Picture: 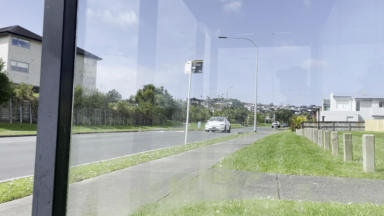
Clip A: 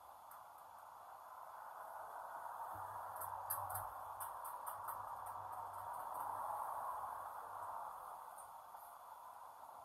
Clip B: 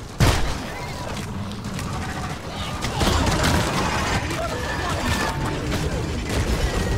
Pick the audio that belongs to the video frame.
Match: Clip A